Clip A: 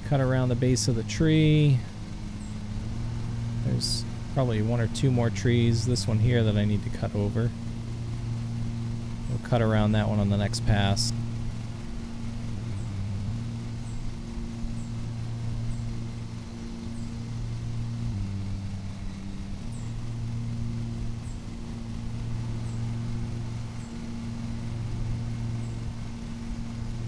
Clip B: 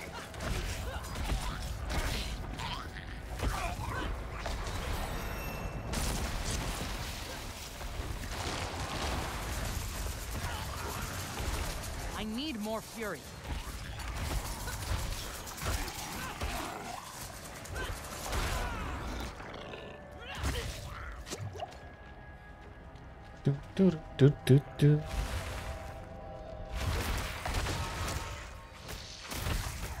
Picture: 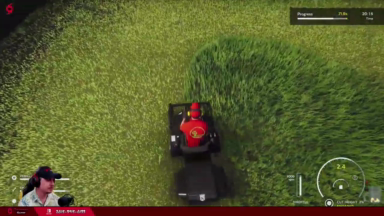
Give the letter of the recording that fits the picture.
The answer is A